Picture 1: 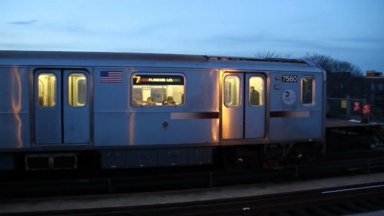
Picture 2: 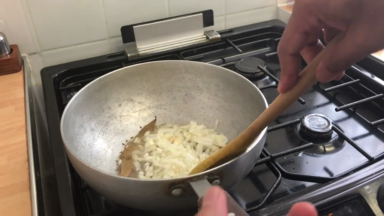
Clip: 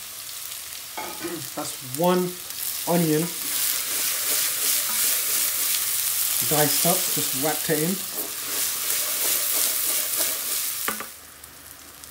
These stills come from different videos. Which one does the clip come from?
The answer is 2